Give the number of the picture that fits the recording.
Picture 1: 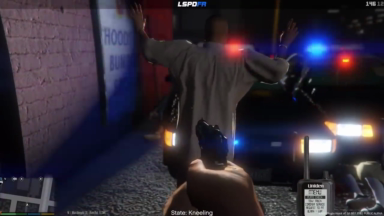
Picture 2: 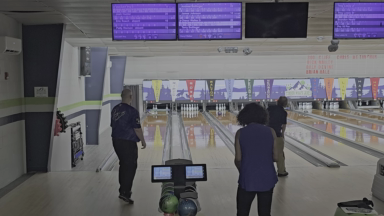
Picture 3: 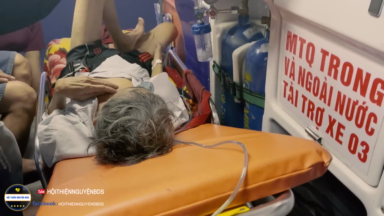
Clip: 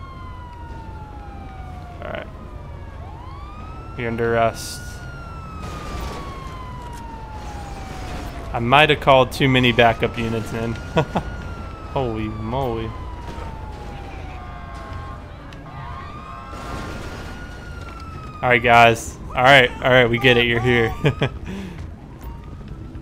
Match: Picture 1